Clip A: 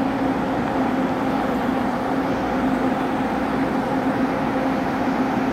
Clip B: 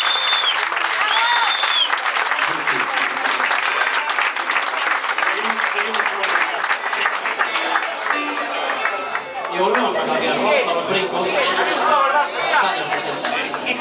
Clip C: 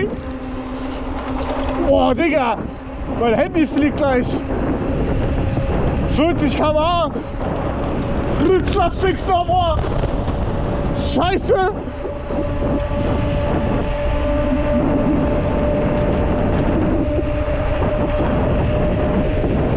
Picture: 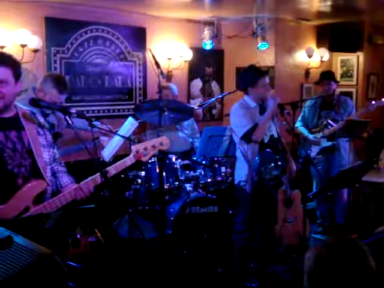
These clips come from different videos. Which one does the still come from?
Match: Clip B